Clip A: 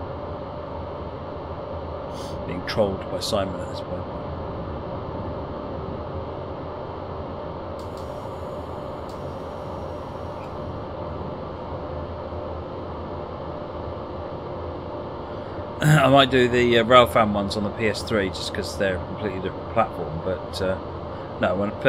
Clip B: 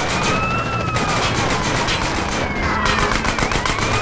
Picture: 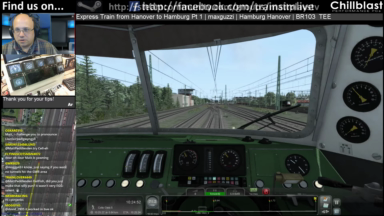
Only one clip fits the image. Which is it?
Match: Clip A